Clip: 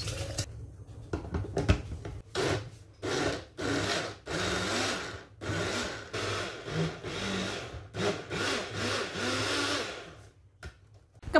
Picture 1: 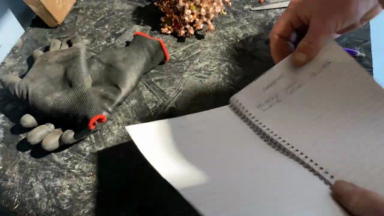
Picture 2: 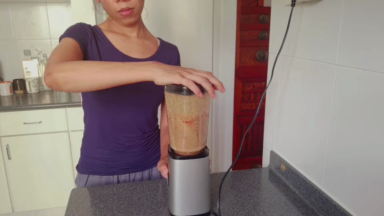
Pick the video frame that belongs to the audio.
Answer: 2